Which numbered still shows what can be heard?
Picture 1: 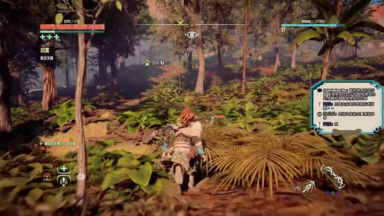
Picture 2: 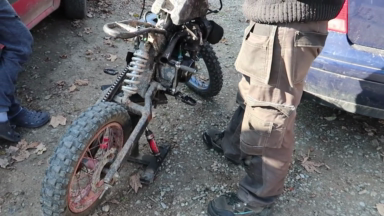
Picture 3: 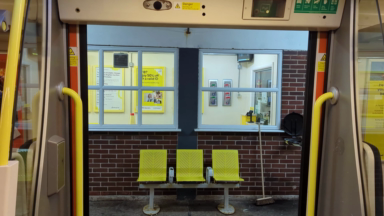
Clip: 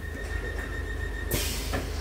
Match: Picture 3